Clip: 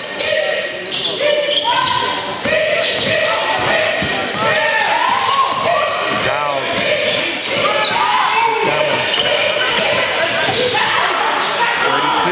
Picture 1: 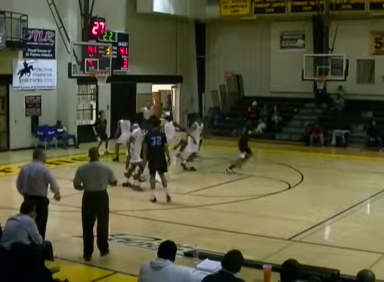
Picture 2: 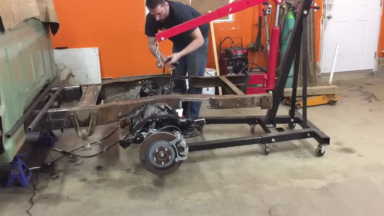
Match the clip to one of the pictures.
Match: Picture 1